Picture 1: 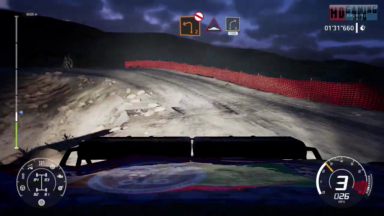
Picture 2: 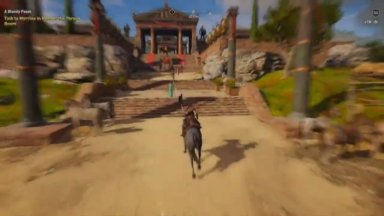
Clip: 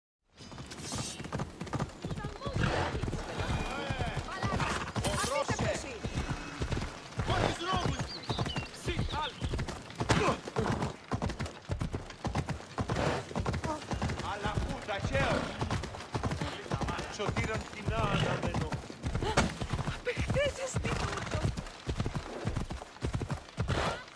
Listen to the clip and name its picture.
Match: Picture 2